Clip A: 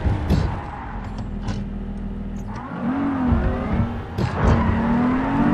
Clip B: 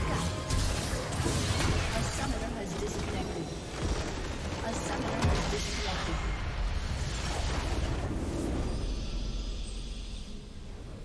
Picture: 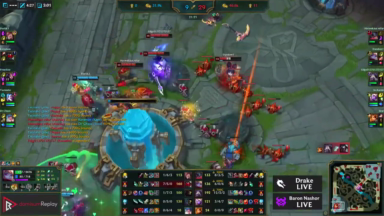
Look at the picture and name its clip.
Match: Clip B